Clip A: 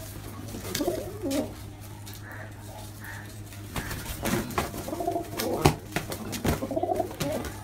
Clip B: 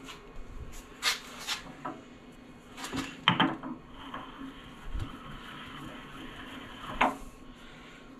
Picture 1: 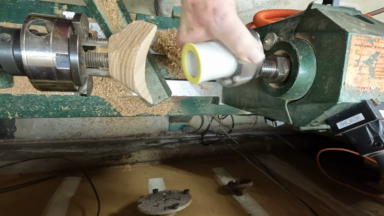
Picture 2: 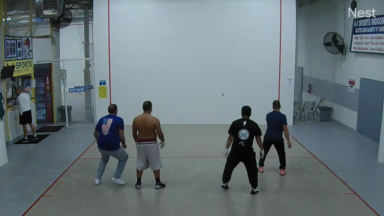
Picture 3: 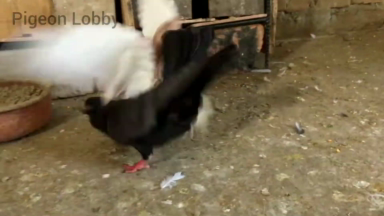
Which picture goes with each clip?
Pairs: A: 3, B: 1